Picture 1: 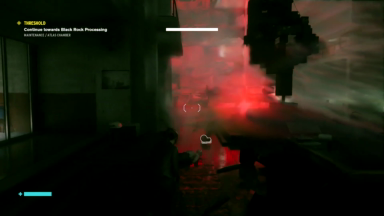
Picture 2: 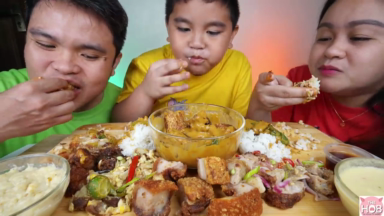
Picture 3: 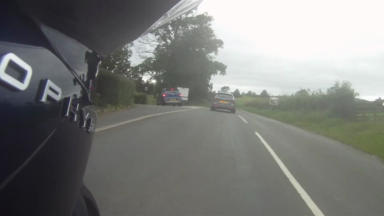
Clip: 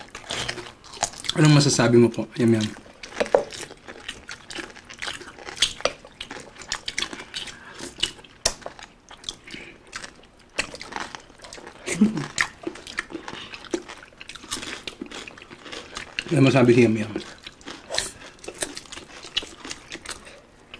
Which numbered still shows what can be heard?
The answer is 2